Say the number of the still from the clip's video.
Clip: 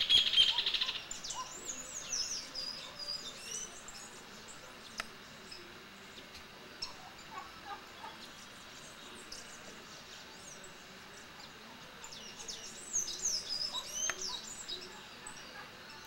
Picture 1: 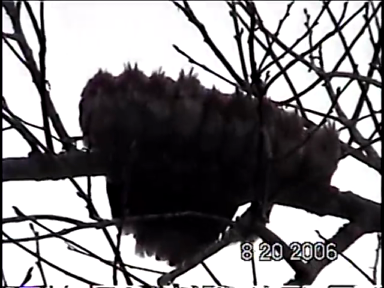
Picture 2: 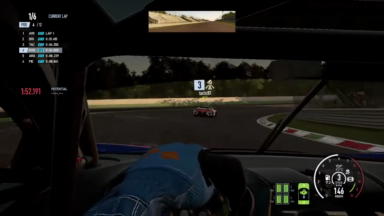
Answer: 1